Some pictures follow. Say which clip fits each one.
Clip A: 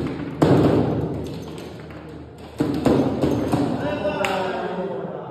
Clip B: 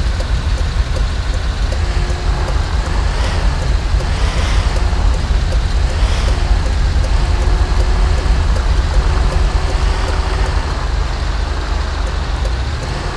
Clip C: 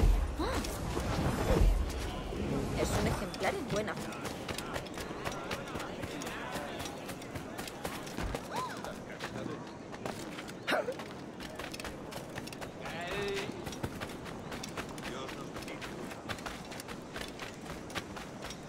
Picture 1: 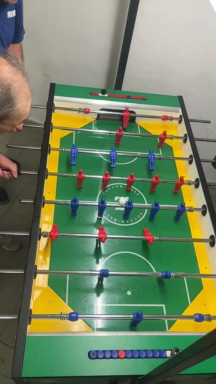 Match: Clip A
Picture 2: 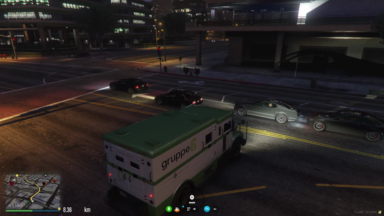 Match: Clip B